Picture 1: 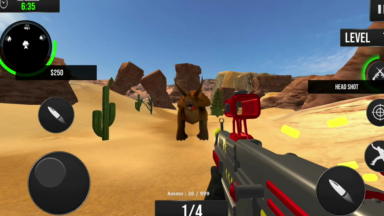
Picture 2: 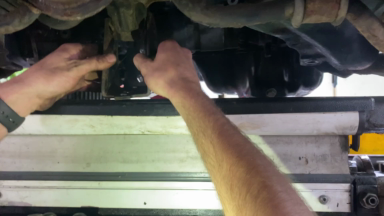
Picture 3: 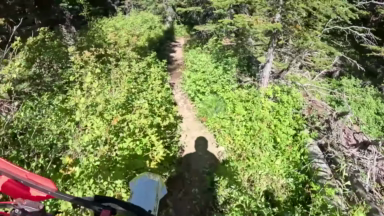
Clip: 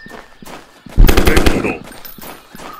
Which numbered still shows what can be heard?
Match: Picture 1